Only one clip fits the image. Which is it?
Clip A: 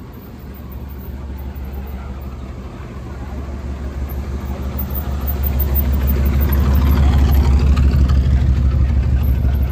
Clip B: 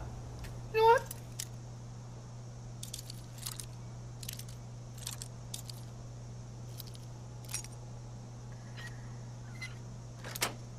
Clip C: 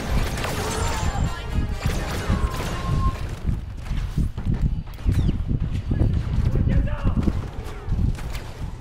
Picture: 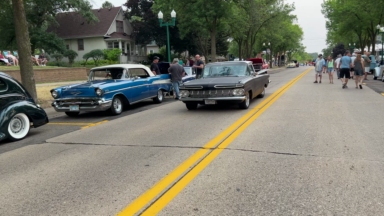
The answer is A